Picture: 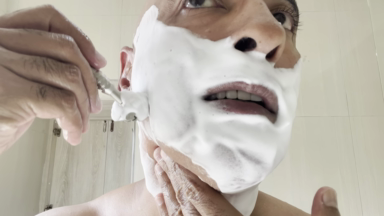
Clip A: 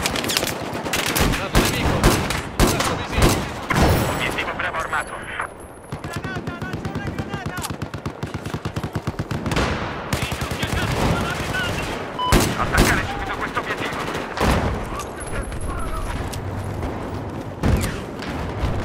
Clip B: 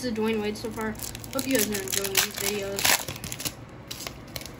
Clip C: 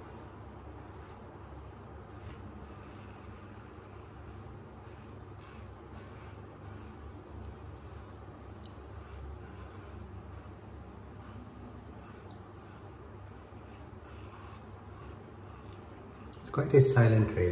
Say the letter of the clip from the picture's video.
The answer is C